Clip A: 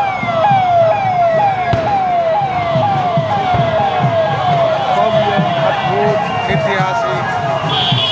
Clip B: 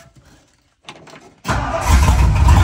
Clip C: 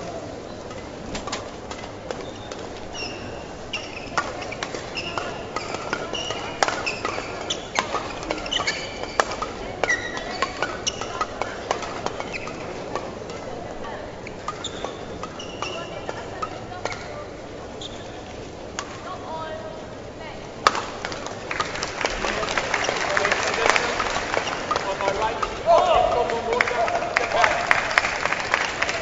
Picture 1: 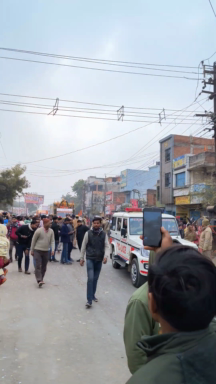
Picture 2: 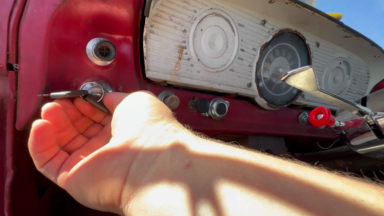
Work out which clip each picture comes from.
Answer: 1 A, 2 B